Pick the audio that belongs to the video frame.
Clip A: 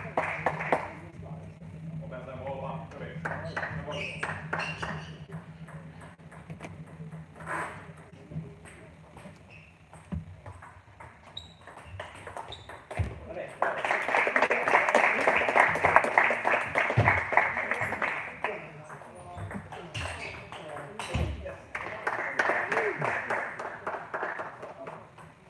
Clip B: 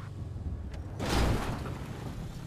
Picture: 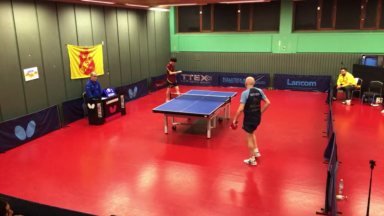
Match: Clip A